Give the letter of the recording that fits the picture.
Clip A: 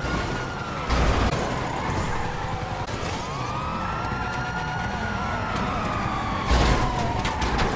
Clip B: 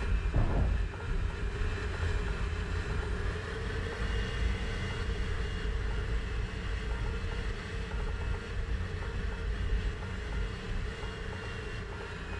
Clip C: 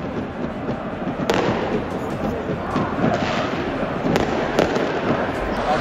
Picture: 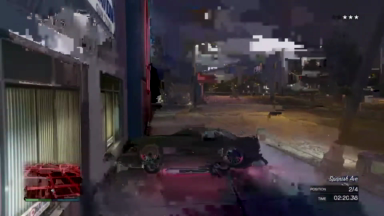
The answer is A